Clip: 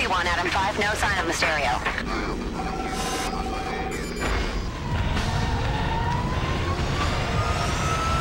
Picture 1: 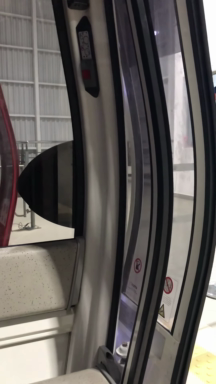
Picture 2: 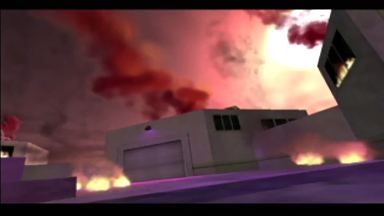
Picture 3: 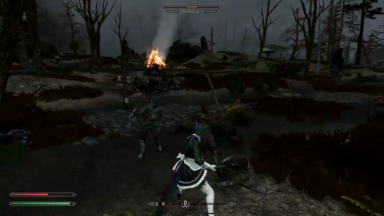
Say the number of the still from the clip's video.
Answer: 2